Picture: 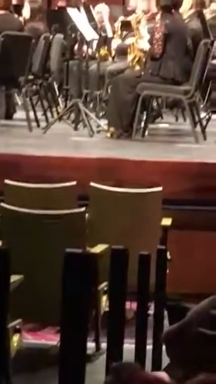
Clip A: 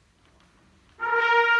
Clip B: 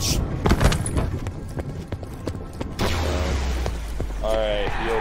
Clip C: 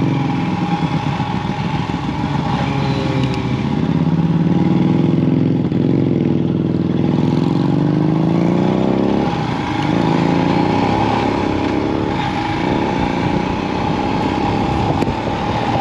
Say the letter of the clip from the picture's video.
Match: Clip A